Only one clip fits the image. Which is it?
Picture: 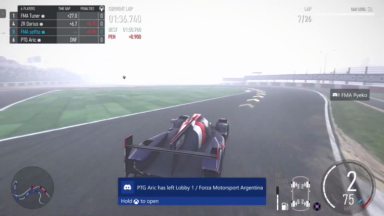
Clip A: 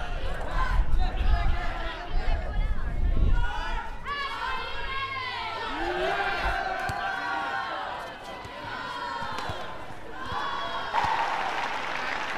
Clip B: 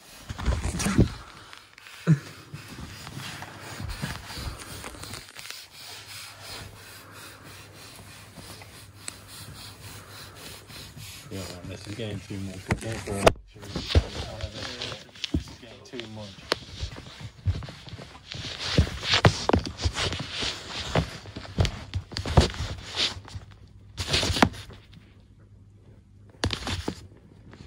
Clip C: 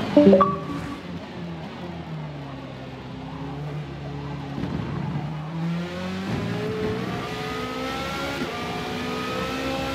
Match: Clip C